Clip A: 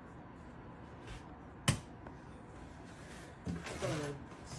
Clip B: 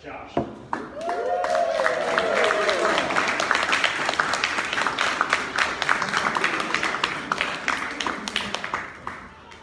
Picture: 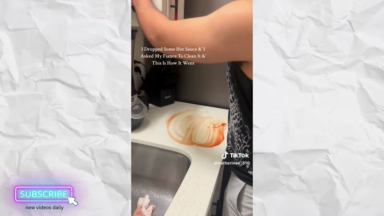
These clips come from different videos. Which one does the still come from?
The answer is A